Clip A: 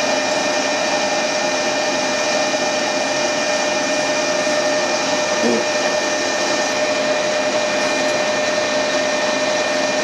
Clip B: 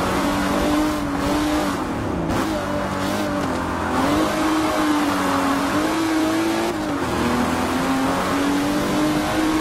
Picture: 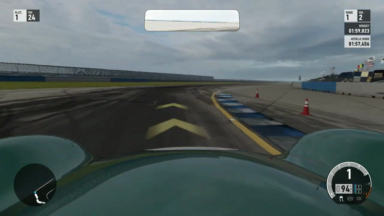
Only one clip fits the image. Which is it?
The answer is B